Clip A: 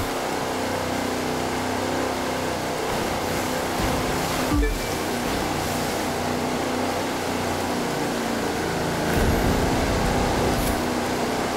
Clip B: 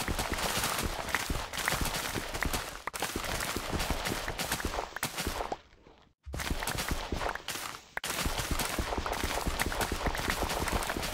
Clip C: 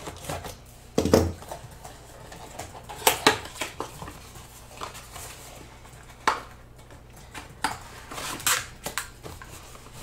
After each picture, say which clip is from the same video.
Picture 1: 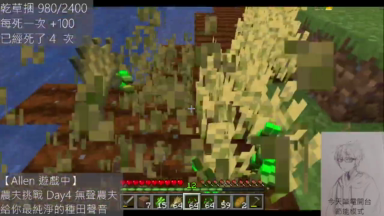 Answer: B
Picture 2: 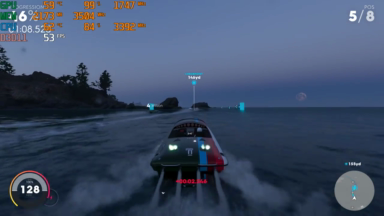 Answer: A